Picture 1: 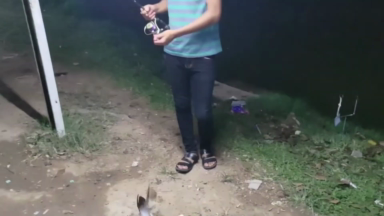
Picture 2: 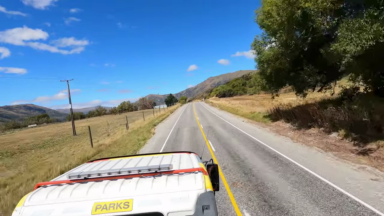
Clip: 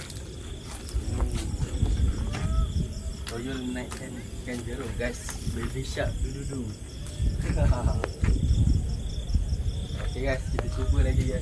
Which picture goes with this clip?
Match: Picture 1